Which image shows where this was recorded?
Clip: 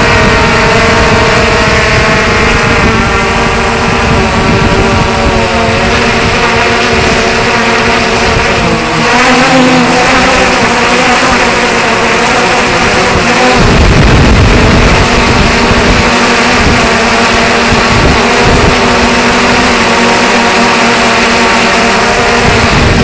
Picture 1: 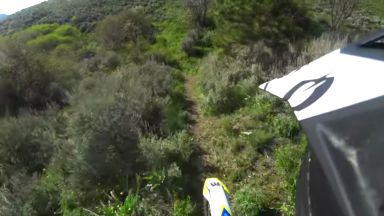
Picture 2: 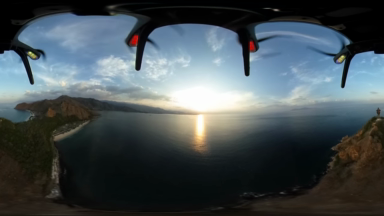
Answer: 2